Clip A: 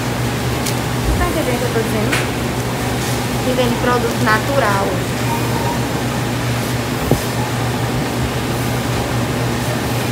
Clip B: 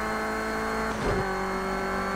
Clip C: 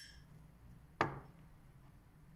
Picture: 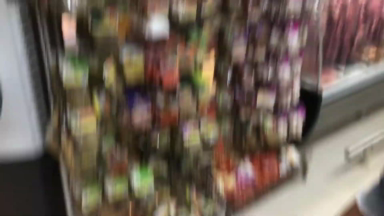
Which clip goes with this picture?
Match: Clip A